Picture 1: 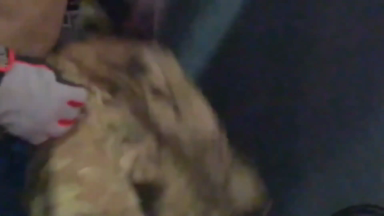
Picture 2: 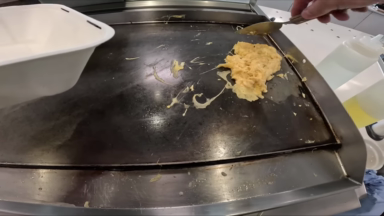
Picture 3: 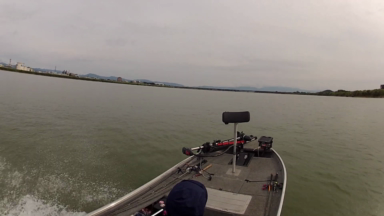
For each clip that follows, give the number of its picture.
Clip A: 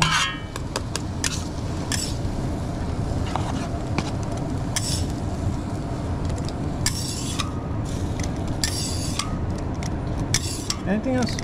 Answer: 2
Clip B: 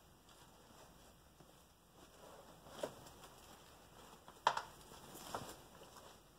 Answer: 1